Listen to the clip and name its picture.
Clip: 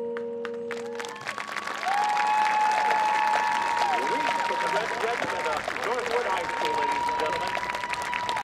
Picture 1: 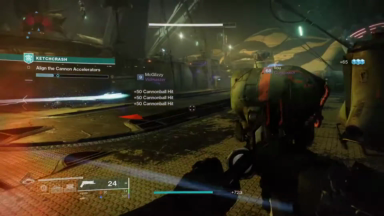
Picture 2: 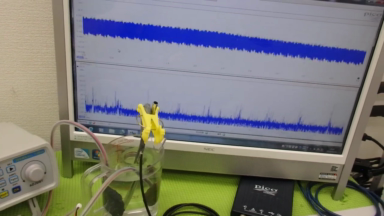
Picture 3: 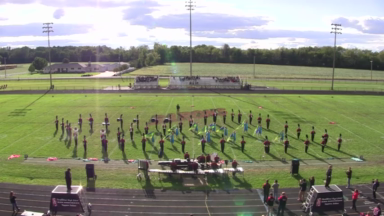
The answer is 3